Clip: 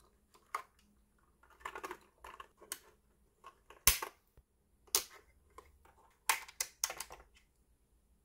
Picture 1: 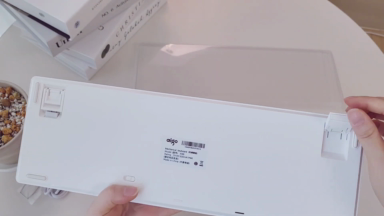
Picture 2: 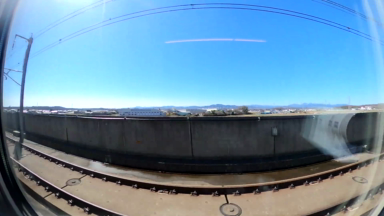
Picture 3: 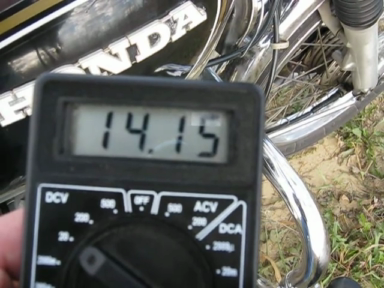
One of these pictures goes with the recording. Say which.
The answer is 1